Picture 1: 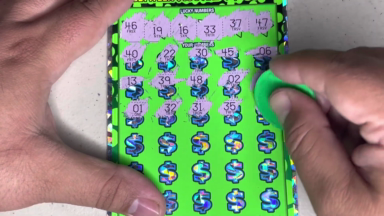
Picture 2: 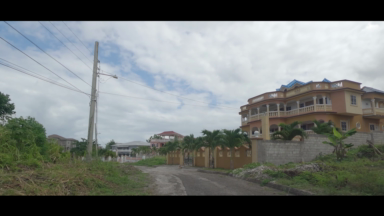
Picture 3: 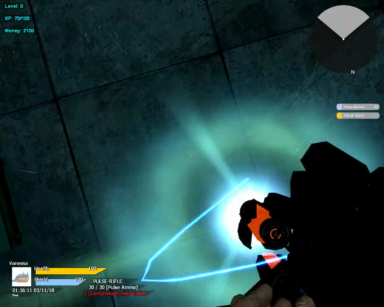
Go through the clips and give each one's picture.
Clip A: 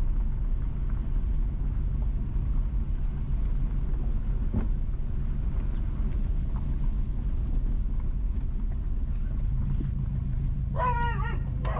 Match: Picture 2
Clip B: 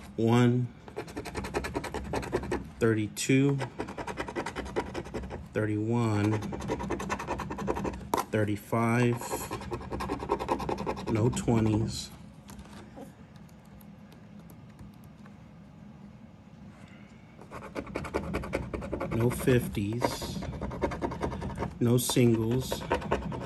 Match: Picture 1